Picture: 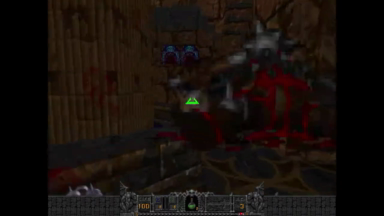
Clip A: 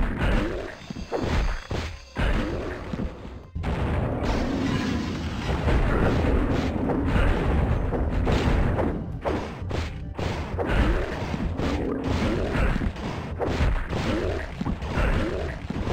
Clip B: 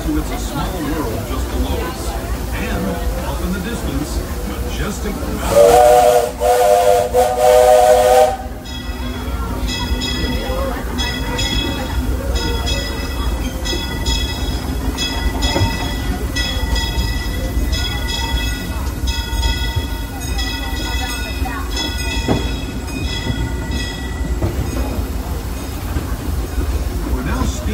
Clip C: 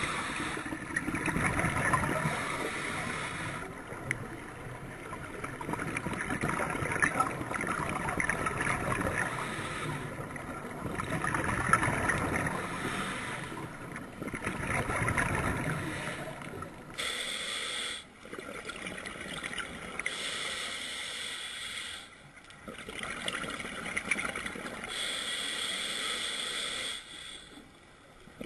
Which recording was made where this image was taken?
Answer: A